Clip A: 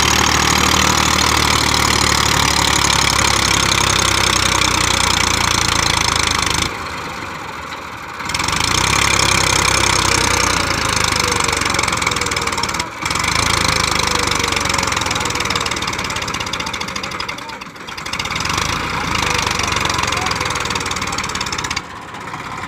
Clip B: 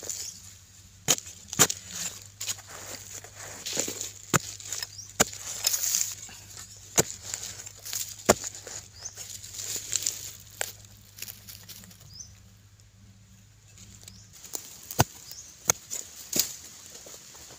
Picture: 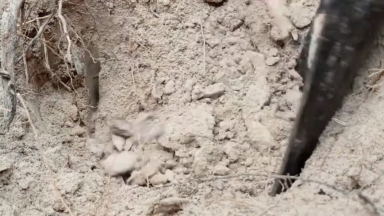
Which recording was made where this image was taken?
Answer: B